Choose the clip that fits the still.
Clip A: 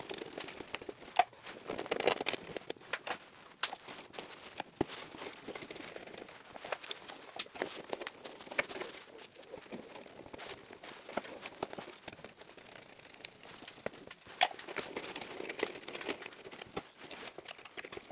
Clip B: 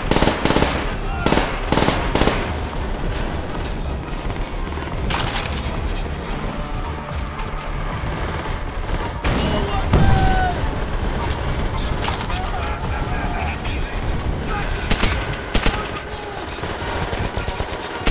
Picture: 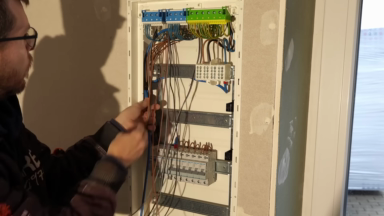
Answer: A